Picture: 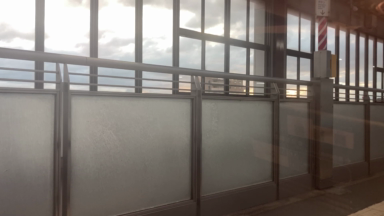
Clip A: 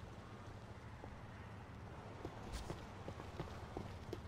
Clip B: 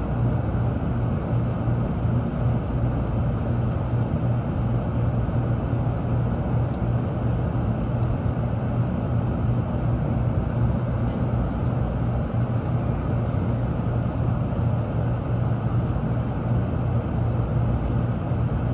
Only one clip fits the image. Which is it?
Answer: B